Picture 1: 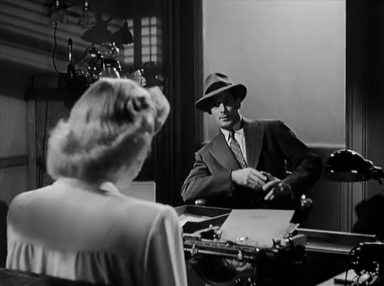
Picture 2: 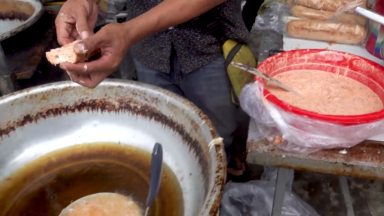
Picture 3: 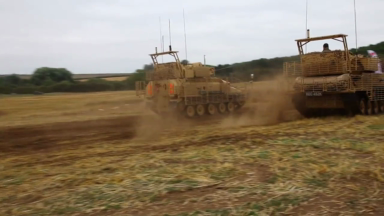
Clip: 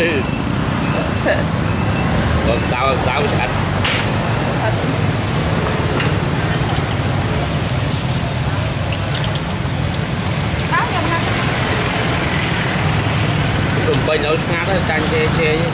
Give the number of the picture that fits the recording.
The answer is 2